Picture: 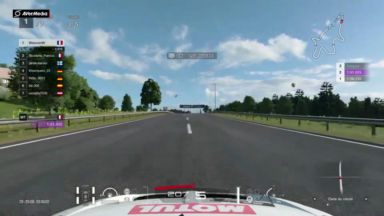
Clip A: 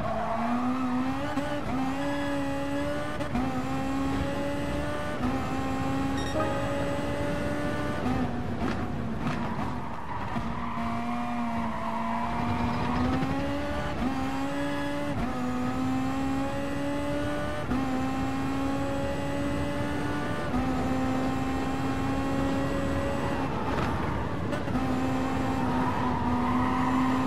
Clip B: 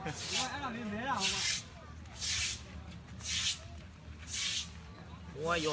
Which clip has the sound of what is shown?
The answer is A